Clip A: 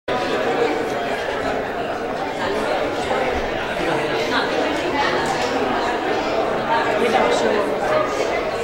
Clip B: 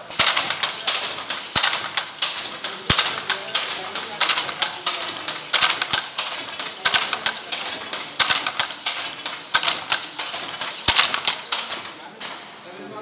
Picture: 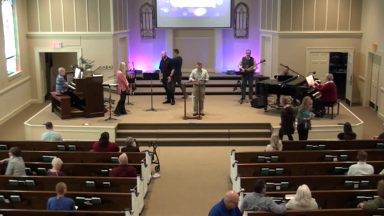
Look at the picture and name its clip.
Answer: A